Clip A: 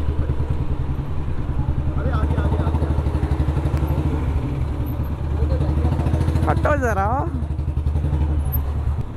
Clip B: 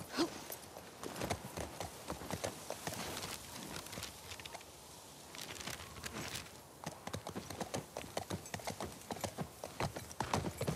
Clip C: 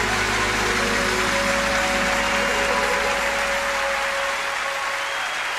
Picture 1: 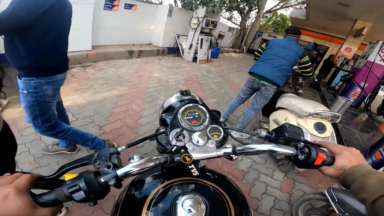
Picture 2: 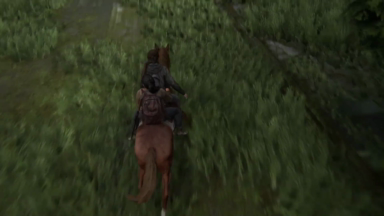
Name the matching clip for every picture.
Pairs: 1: A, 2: B